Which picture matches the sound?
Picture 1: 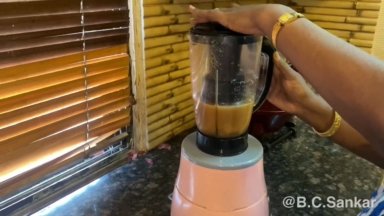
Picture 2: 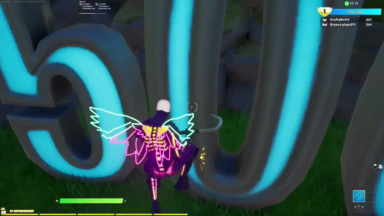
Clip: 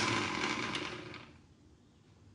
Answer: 1